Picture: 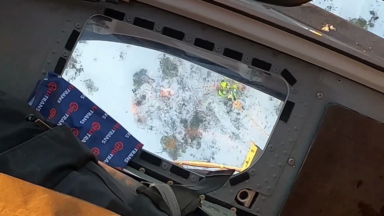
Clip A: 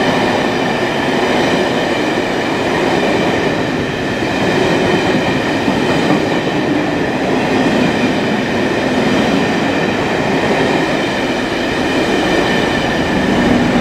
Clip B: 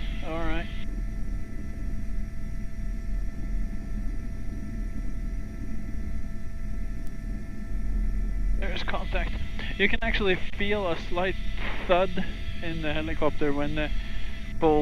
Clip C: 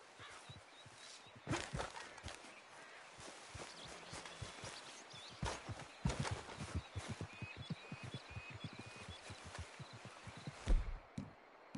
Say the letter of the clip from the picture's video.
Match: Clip B